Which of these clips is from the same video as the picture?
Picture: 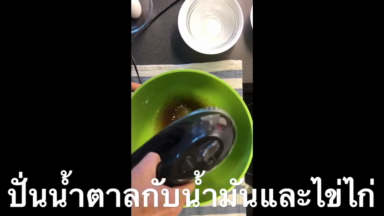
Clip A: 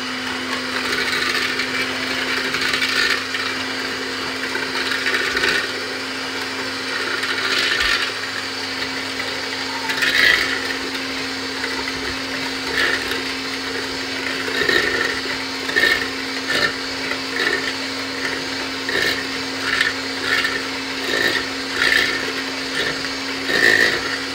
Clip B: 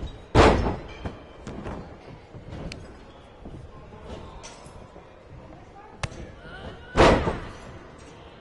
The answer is A